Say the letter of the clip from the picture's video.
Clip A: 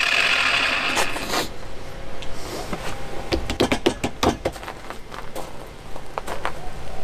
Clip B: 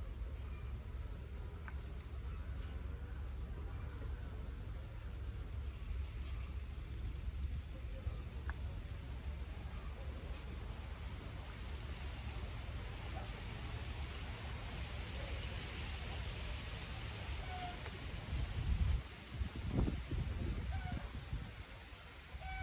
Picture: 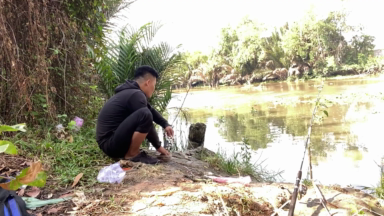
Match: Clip B